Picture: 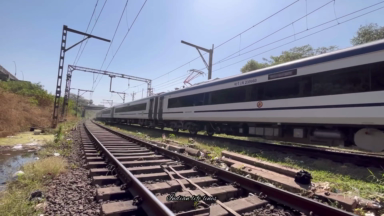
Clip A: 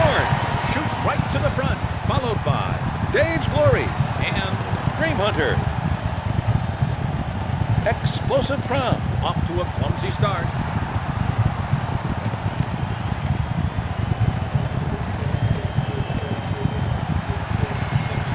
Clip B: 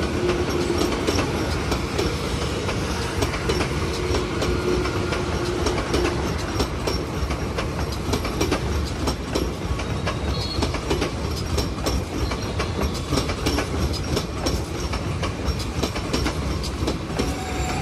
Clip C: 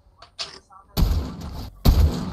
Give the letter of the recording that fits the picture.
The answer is B